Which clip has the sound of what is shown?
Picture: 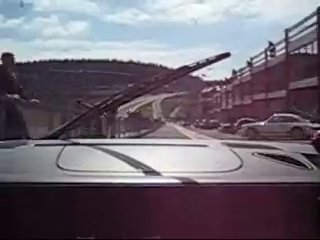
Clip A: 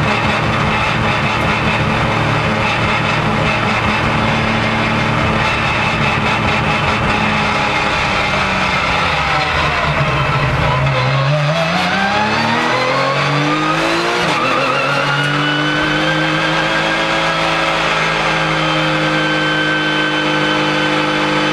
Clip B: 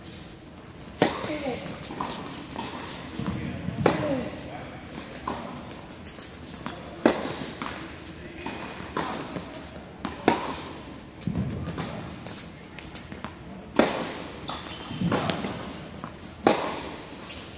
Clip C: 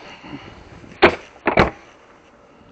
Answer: A